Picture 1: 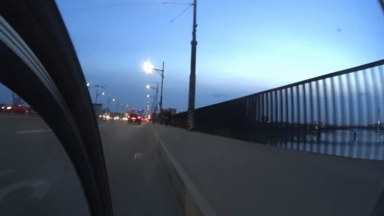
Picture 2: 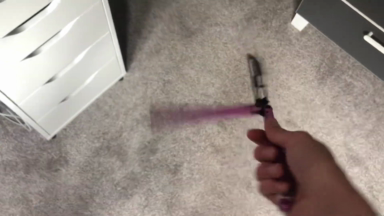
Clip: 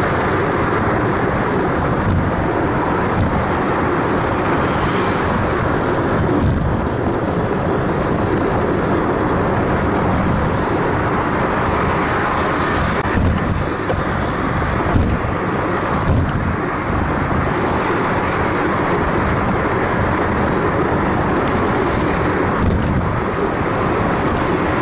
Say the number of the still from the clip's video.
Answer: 1